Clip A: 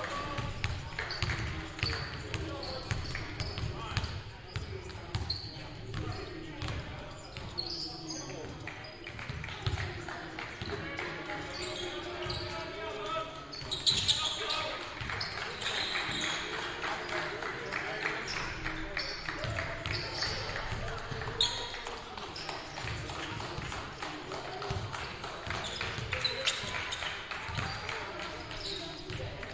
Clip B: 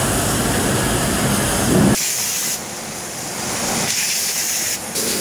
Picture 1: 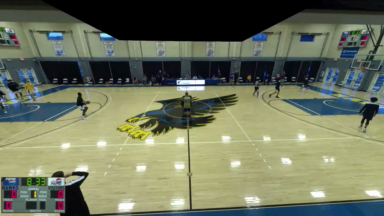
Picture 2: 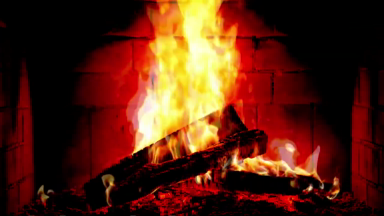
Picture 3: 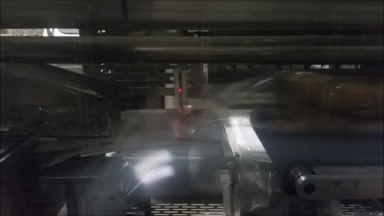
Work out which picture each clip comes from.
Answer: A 1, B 3